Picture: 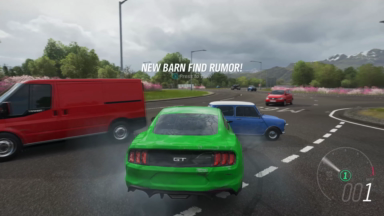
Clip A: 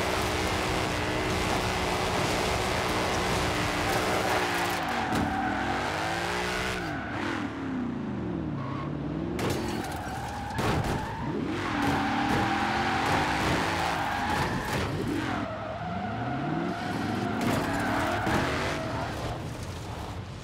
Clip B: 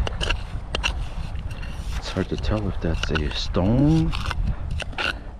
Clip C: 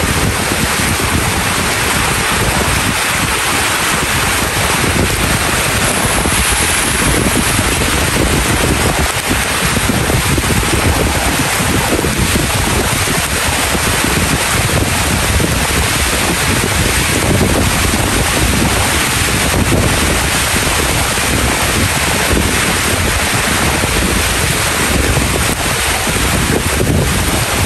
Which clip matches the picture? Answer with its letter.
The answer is A